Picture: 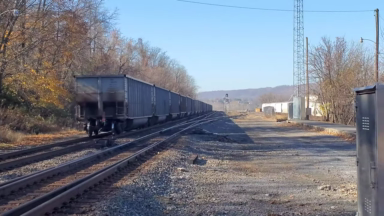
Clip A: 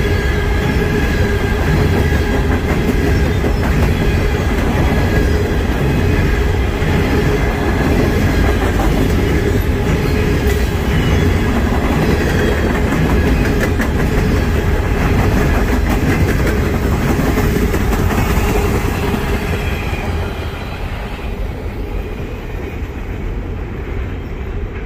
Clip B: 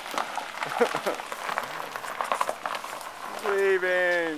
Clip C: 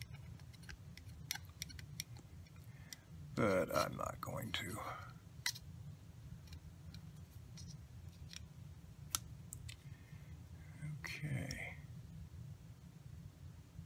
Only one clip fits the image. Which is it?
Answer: A